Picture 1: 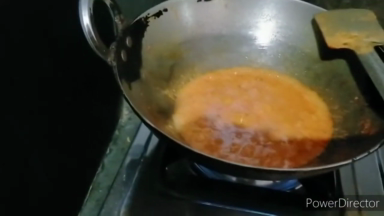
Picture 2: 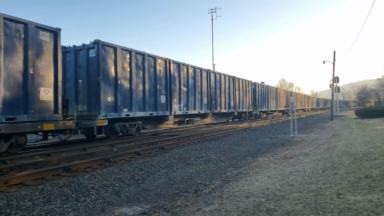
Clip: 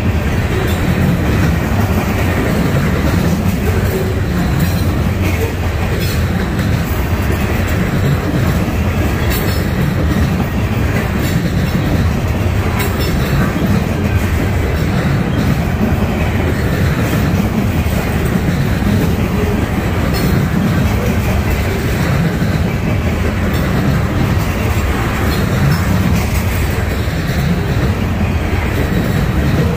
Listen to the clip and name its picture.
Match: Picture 2